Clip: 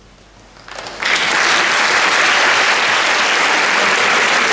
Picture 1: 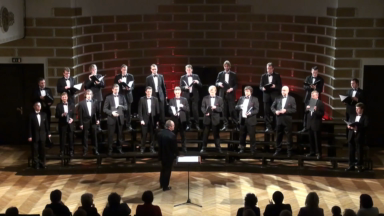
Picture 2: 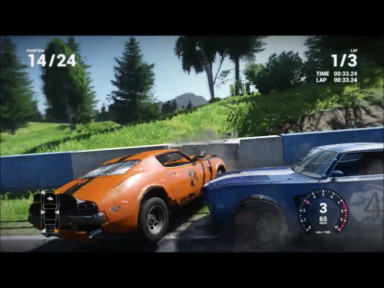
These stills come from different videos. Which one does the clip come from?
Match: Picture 1